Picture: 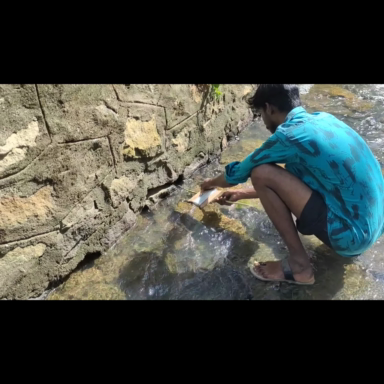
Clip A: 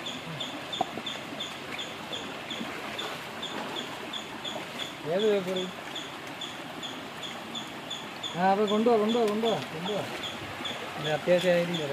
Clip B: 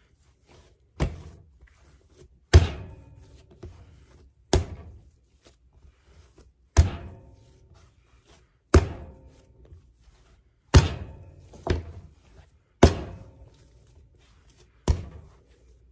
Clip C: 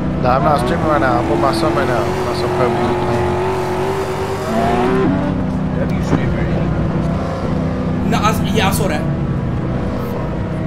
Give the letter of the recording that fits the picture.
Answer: A